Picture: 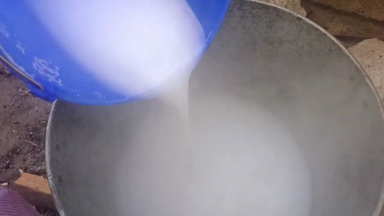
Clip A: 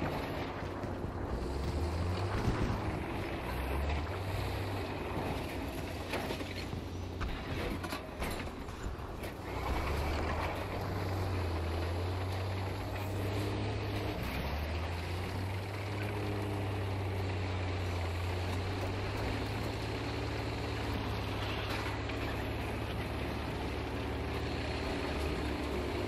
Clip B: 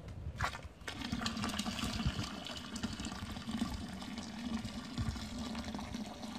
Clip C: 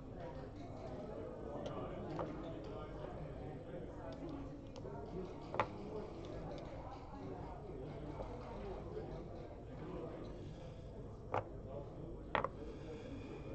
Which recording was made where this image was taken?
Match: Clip B